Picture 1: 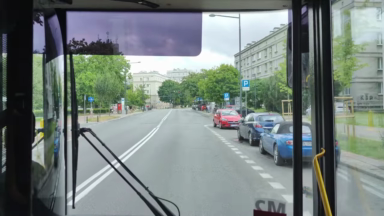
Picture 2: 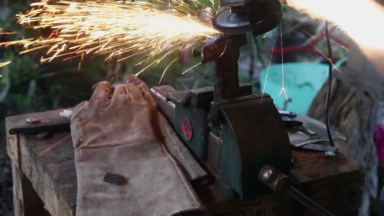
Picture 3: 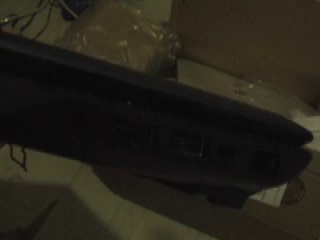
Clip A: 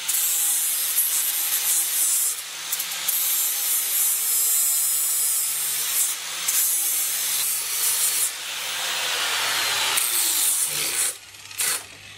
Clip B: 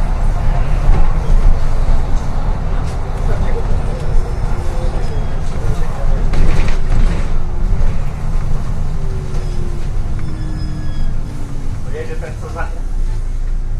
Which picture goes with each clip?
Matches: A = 2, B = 1